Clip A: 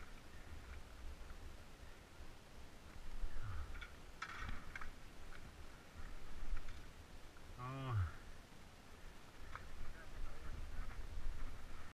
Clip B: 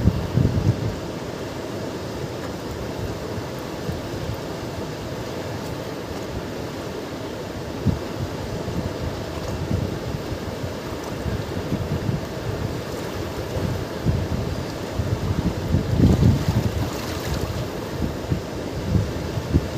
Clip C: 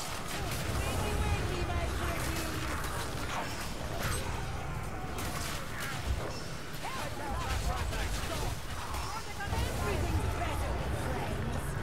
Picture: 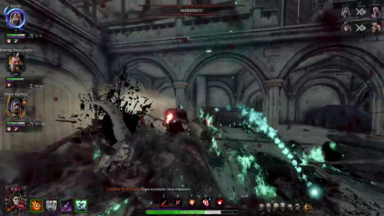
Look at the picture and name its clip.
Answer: C